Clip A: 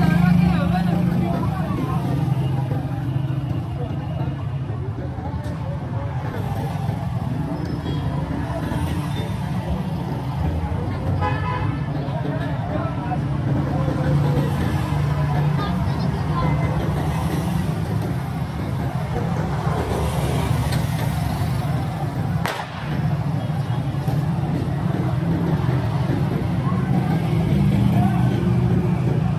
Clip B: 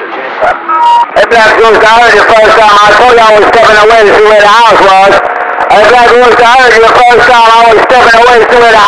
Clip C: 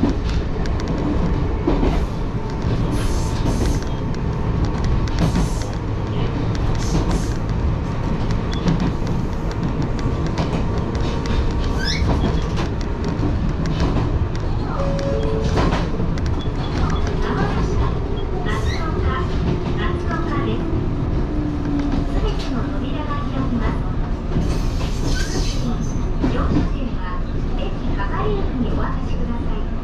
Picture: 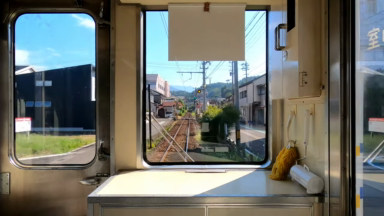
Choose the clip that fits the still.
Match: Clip C